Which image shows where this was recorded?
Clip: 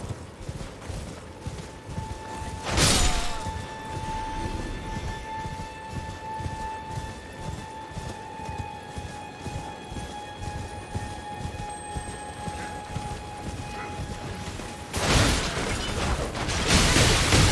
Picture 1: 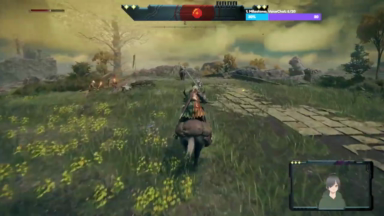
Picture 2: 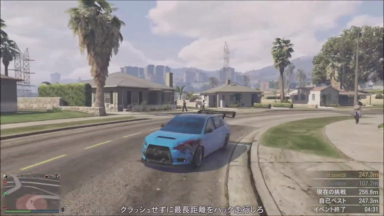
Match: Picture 1